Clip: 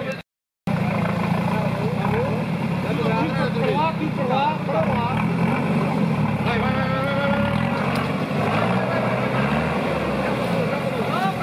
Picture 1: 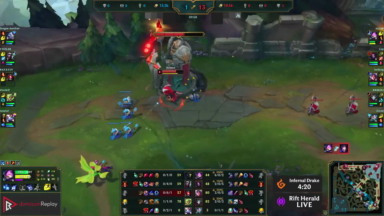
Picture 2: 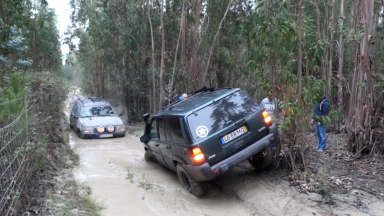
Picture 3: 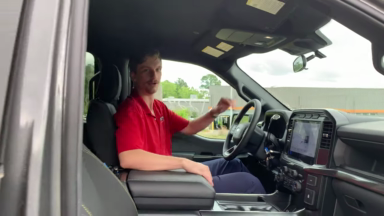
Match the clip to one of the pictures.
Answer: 2